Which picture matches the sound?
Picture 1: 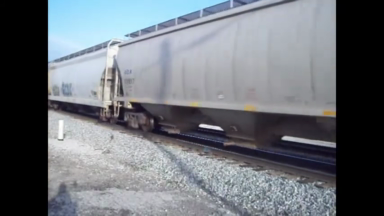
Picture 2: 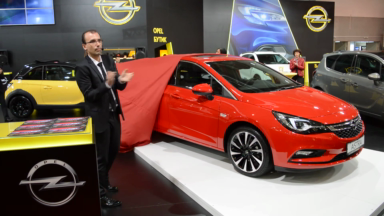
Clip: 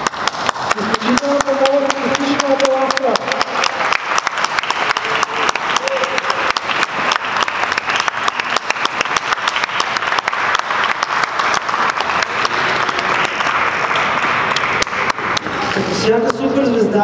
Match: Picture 2